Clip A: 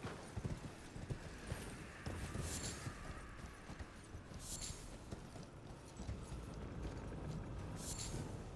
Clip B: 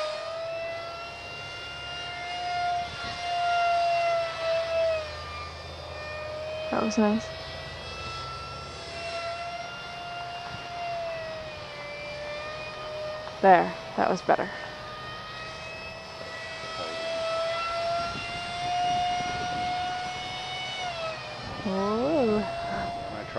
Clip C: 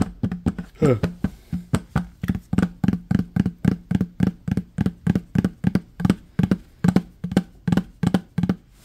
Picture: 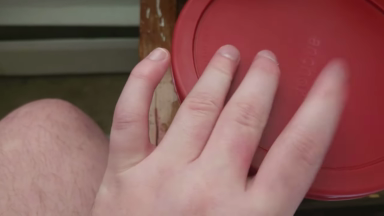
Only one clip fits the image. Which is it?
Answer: C